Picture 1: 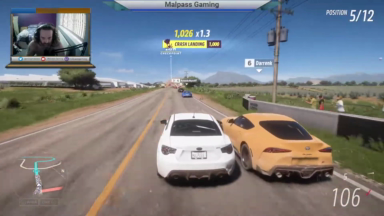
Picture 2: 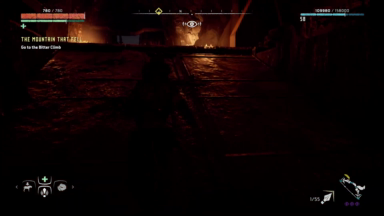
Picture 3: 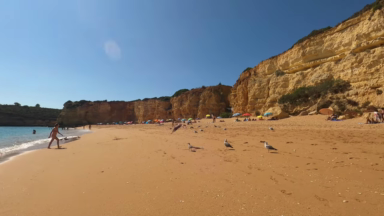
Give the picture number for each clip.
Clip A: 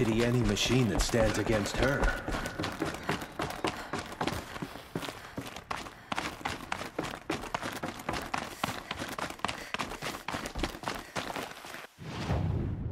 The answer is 2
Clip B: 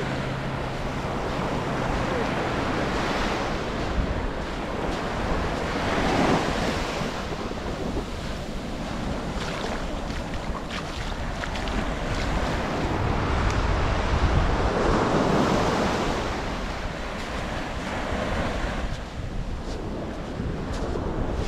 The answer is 3